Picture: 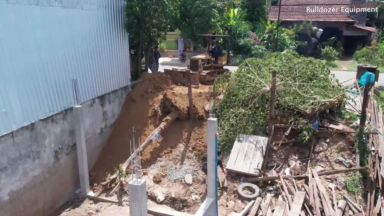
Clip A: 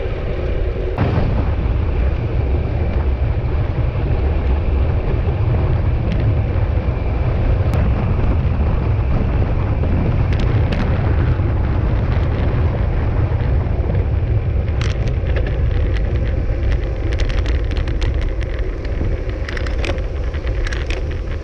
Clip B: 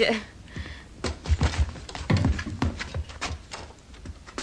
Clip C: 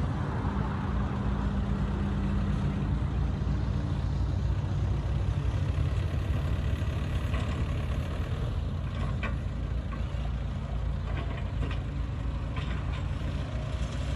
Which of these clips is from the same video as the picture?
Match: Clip C